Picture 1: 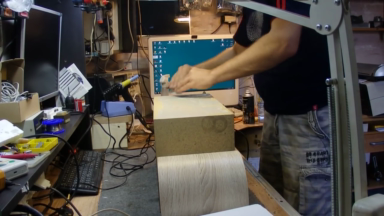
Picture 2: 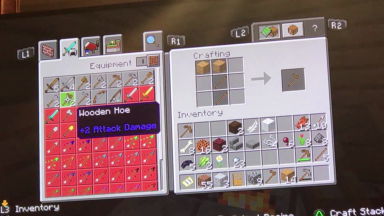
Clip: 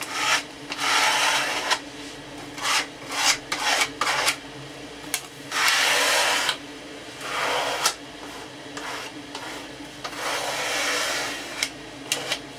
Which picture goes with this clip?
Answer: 1